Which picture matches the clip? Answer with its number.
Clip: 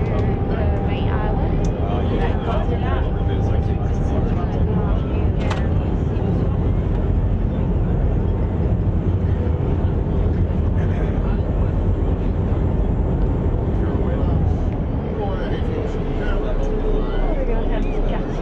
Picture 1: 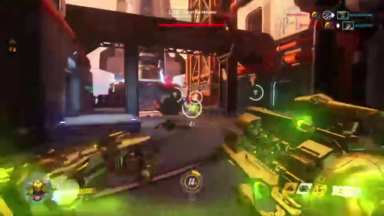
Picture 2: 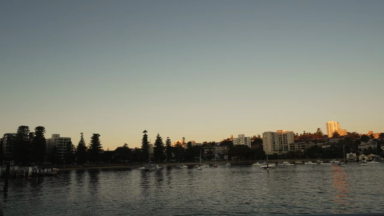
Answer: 2